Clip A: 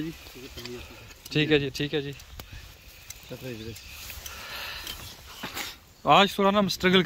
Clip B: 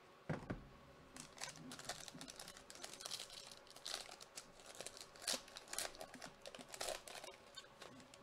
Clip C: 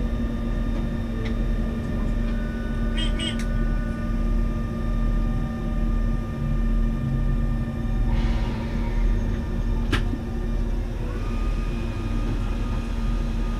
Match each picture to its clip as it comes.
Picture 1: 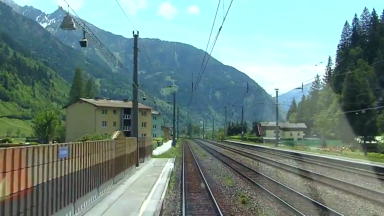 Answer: C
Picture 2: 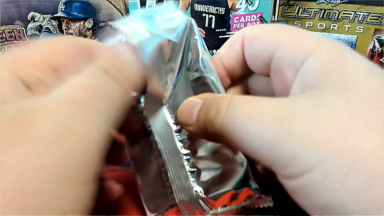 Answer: B